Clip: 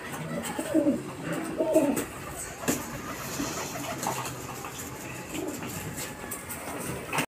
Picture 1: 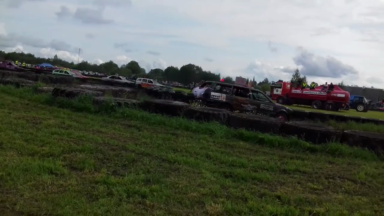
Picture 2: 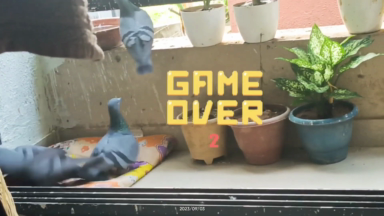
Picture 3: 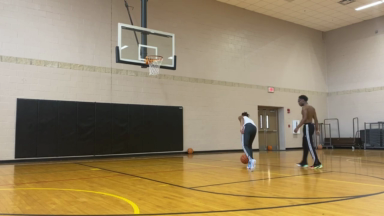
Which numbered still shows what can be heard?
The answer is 2